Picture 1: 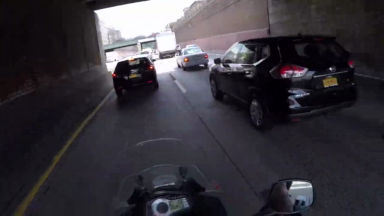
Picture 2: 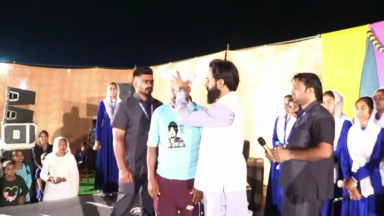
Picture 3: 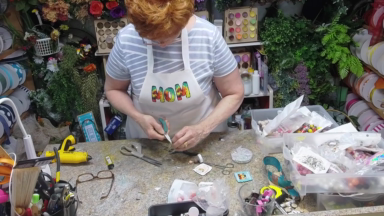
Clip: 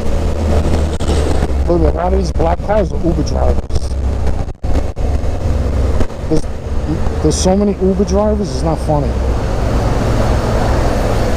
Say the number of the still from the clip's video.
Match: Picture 1